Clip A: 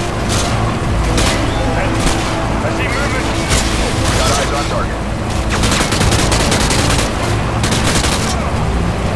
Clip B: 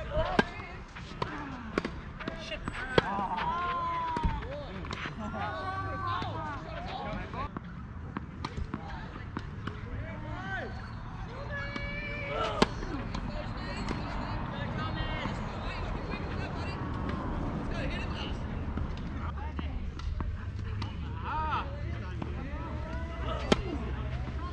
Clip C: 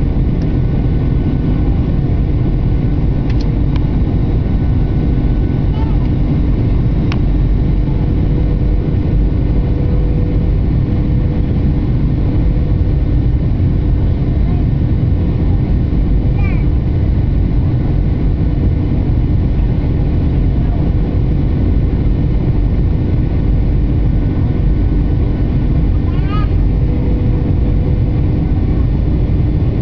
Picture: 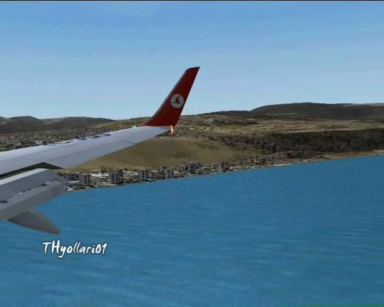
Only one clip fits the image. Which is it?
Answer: C